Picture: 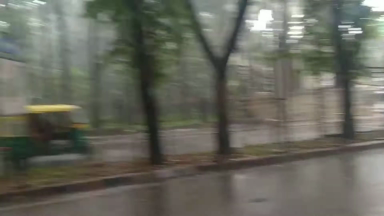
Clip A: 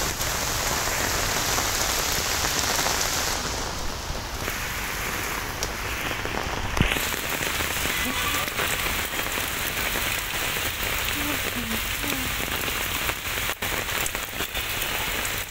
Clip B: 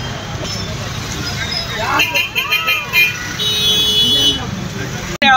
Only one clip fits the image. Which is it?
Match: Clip A